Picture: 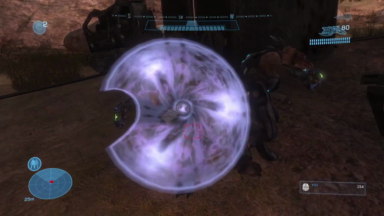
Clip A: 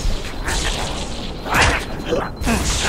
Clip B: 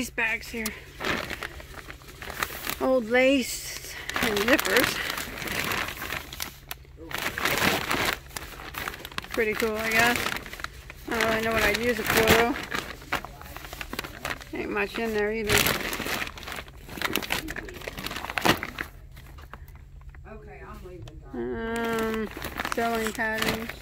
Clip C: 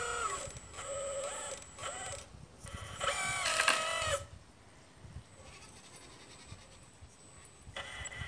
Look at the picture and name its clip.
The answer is A